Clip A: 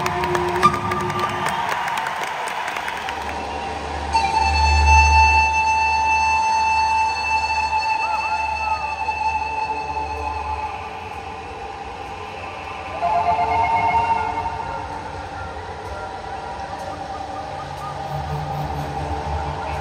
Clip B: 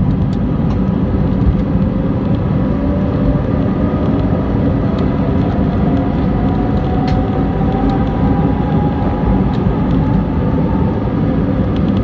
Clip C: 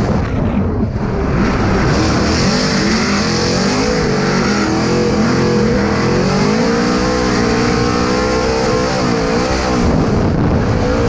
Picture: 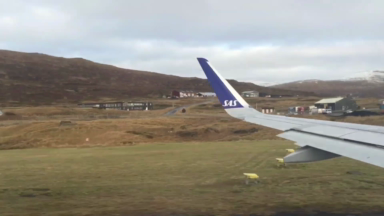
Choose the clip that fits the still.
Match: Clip B